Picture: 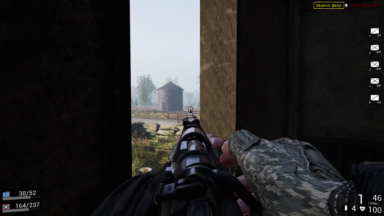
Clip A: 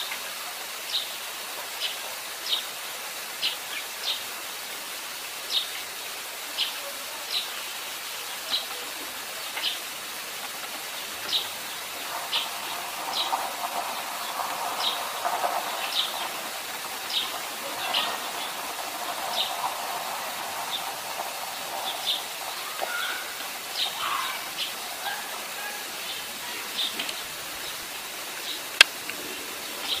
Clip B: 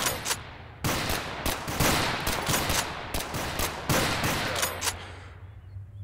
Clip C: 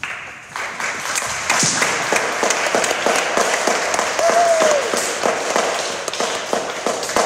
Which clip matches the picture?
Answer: B